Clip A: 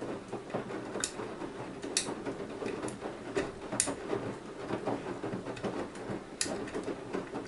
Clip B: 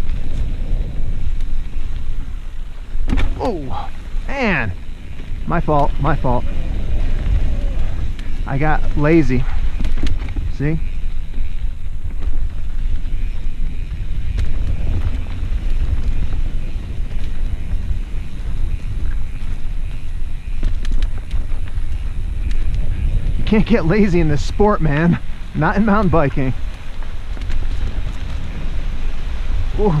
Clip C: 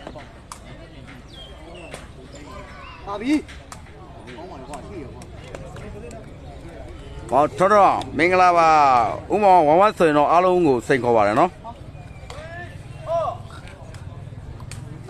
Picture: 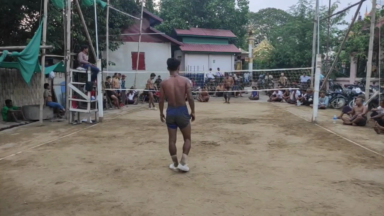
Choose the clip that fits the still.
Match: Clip C